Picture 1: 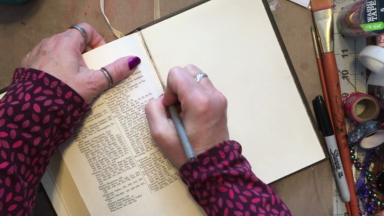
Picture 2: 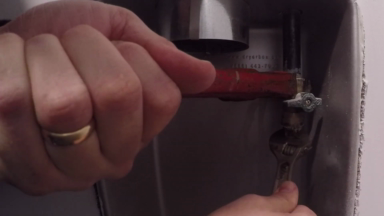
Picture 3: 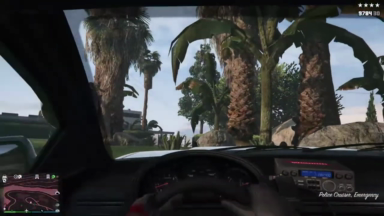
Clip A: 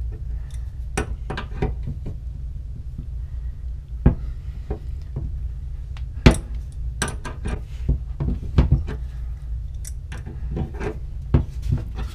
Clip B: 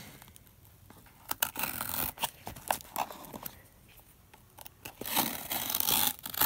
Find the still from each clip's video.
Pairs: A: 2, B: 1